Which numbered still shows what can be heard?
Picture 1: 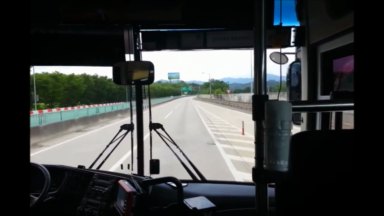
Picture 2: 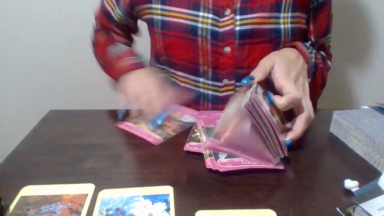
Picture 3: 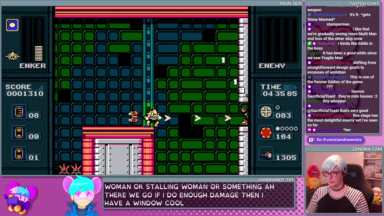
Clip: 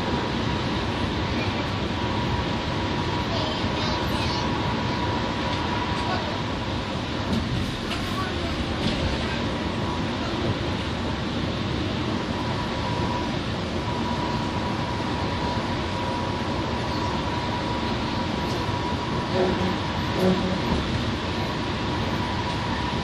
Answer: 1